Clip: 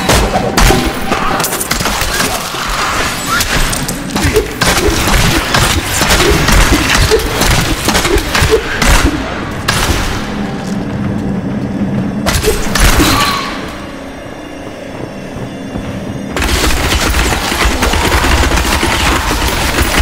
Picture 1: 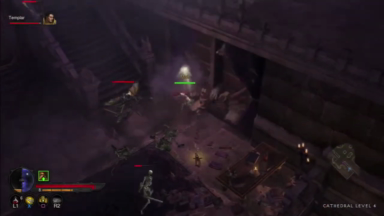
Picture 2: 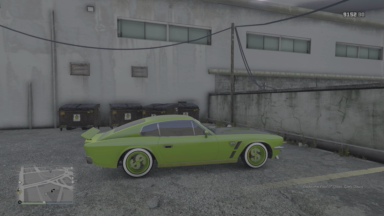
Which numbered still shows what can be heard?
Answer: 1